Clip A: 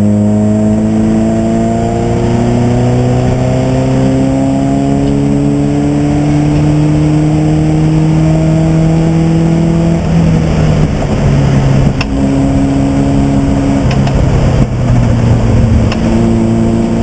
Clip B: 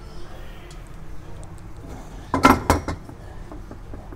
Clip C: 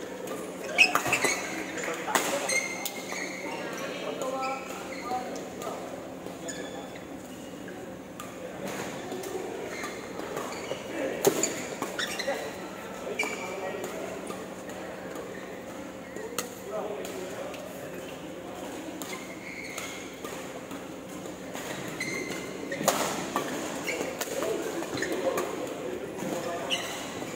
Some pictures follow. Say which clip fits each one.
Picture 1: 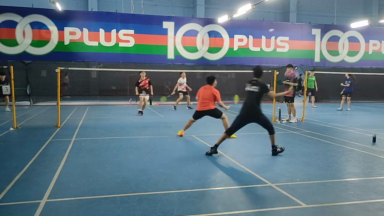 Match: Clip C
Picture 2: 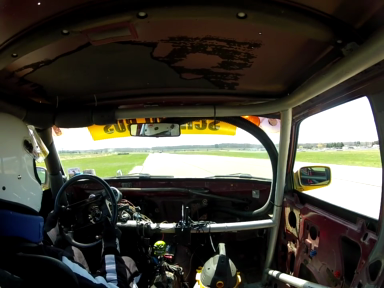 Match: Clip A